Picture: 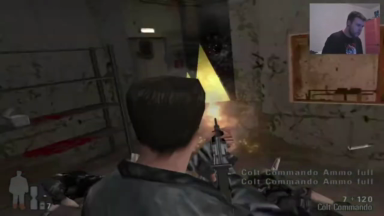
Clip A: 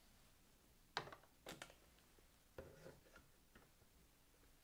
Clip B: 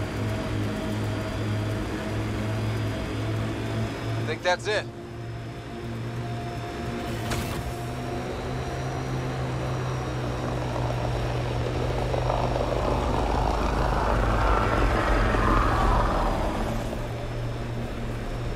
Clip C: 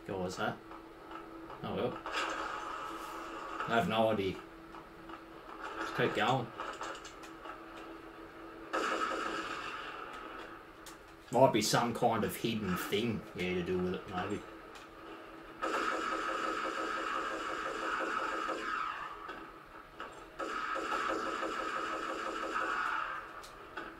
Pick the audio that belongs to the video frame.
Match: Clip C